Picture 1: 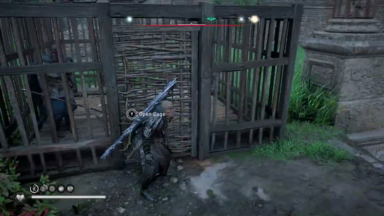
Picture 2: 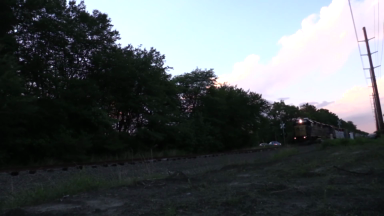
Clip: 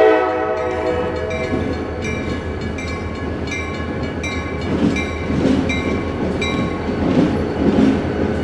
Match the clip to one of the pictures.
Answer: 2